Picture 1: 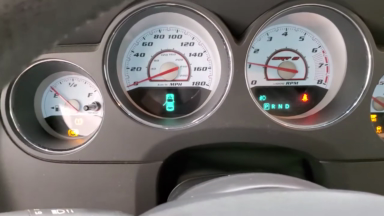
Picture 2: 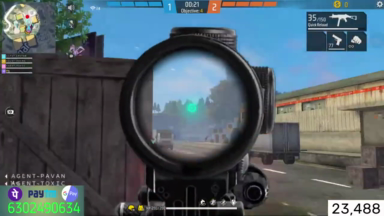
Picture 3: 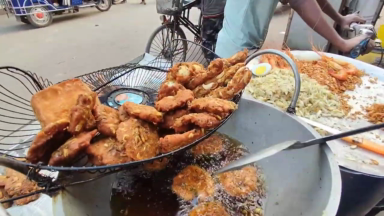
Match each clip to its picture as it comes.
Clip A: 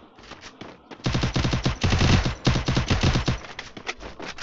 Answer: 2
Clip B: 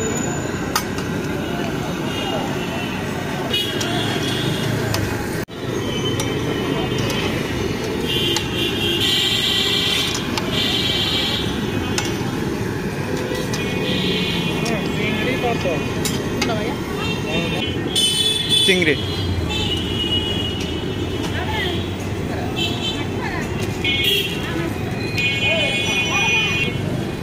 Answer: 3